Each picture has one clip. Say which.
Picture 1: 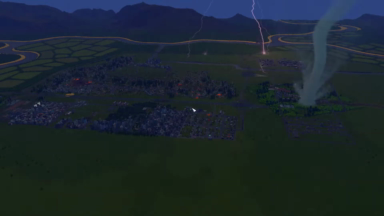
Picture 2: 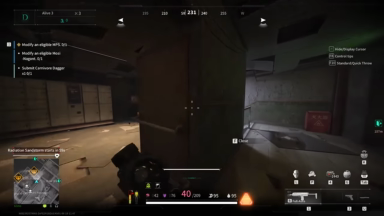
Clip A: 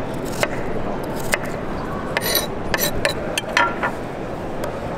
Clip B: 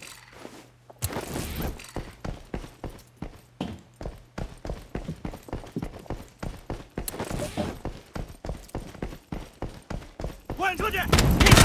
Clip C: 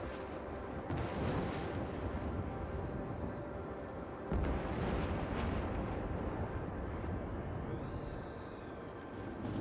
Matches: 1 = C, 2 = B